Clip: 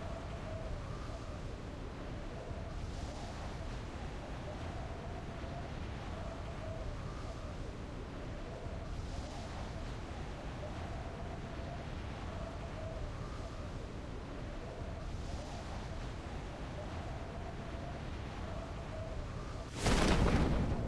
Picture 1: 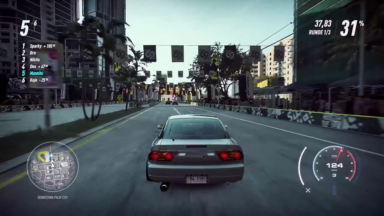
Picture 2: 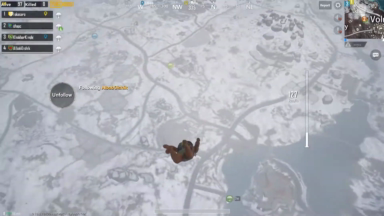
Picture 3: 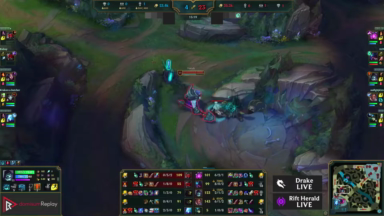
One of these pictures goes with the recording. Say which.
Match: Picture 2